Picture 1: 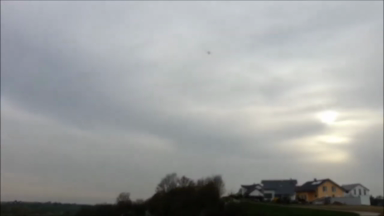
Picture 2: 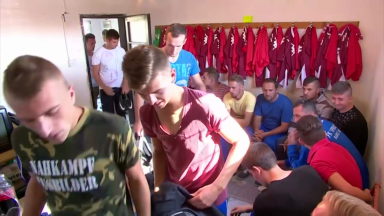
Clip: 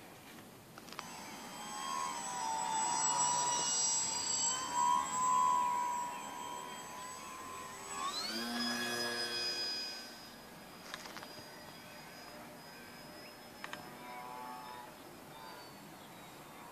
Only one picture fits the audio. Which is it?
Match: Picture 1